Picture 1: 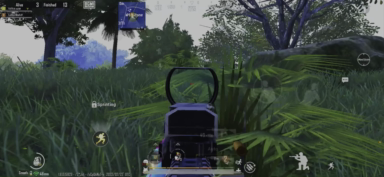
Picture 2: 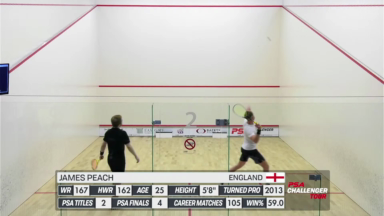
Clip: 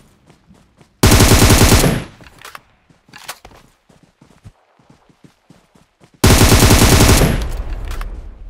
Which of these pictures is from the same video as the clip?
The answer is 1